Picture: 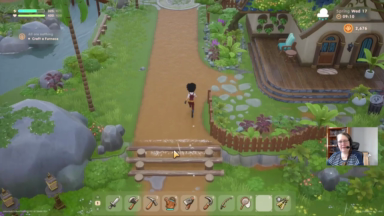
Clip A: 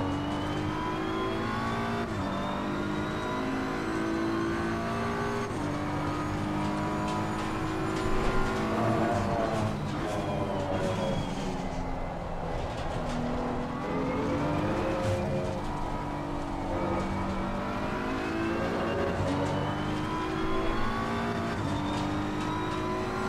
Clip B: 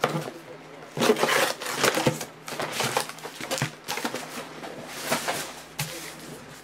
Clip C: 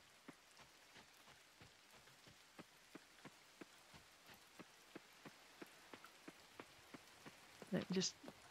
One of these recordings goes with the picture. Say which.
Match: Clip C